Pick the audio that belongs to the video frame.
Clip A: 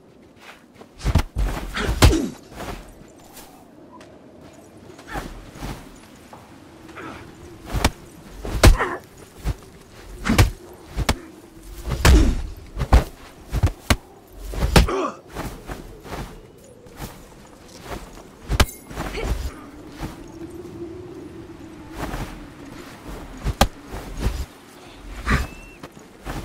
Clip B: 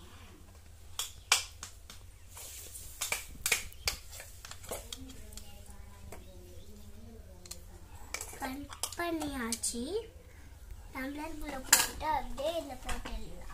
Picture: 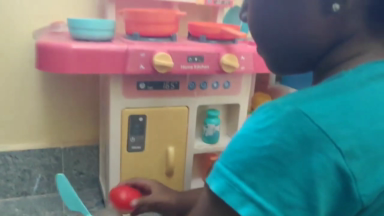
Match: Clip B